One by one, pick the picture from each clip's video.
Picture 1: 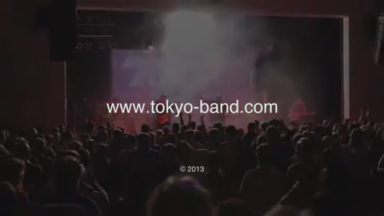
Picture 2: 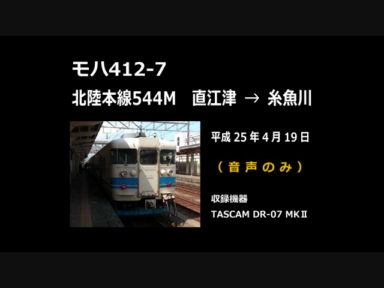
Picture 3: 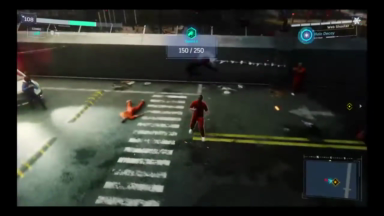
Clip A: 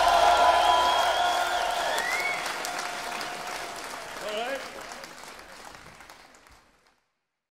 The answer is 1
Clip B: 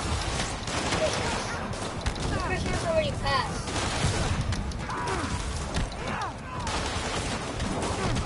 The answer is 3